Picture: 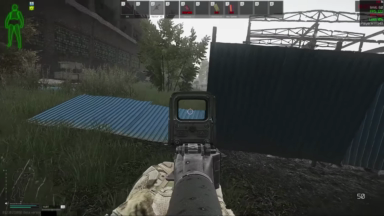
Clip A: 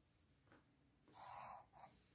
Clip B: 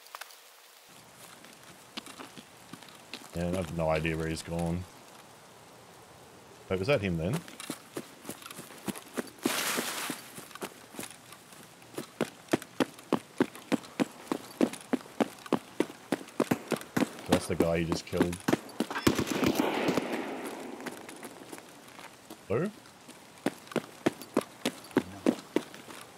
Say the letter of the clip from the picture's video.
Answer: B